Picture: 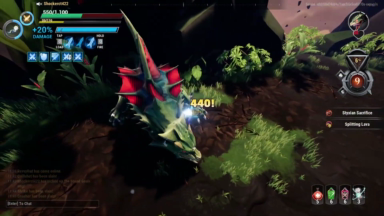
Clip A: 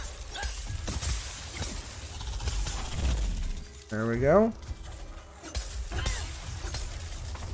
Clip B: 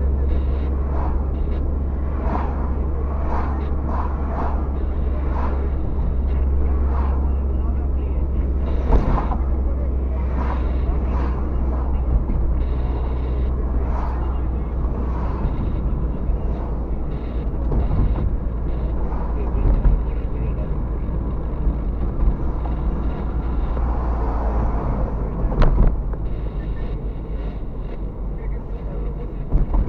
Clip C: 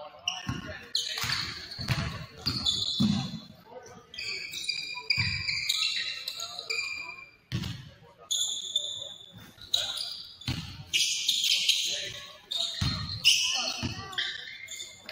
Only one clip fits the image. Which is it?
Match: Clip A